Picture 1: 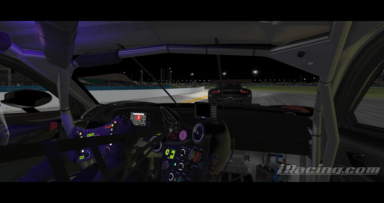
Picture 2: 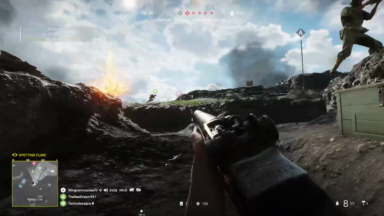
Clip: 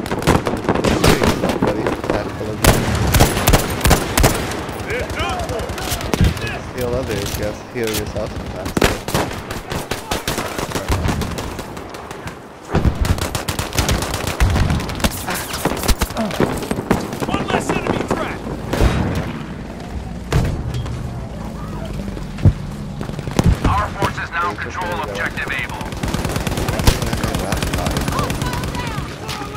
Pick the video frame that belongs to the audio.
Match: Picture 2